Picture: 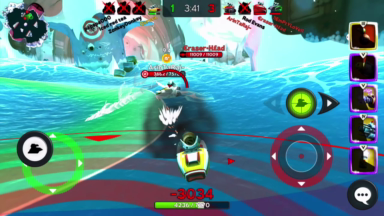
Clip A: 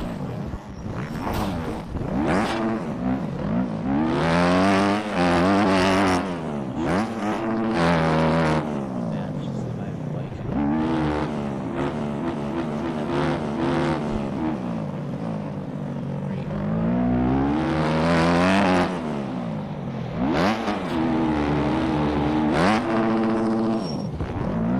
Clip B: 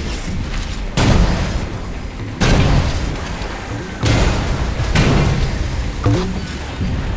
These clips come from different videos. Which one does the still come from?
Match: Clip B